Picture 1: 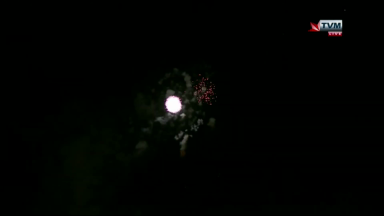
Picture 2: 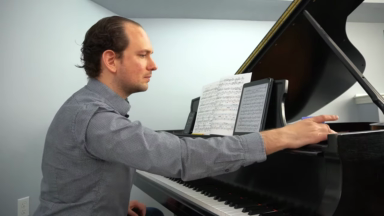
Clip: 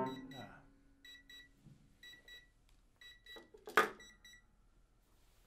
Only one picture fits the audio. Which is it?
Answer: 2